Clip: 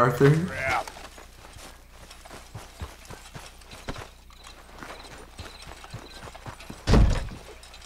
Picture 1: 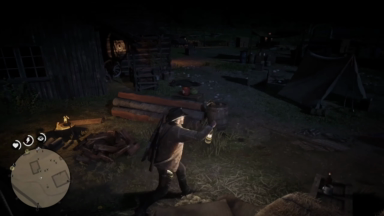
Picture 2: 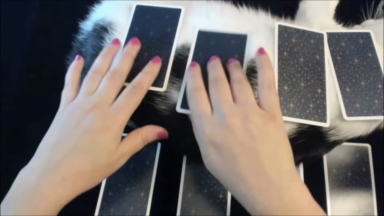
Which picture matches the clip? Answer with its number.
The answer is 1